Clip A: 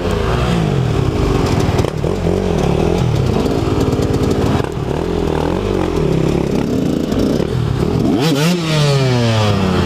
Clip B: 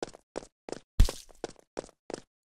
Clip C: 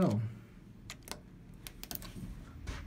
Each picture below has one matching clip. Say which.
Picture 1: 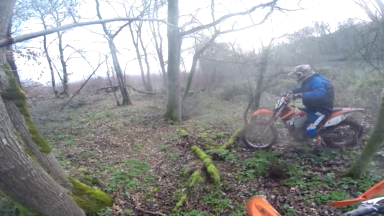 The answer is A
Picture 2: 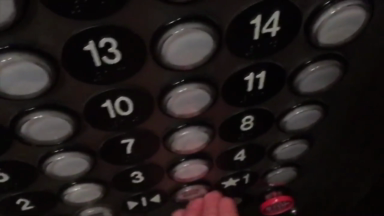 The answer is C